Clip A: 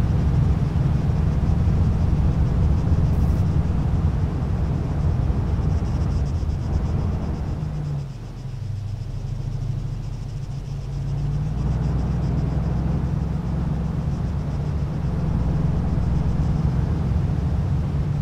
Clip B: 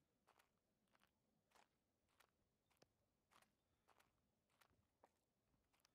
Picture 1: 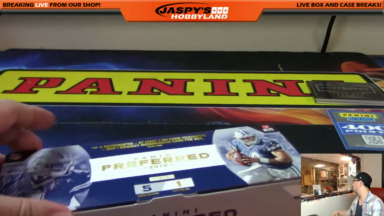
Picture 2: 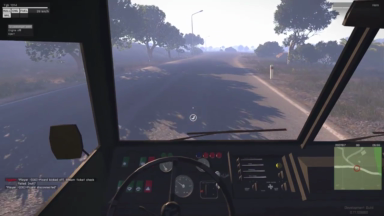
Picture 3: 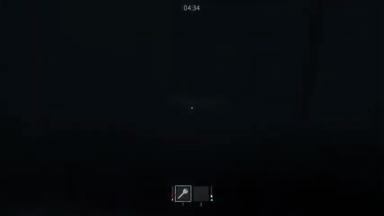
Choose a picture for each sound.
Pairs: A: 2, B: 3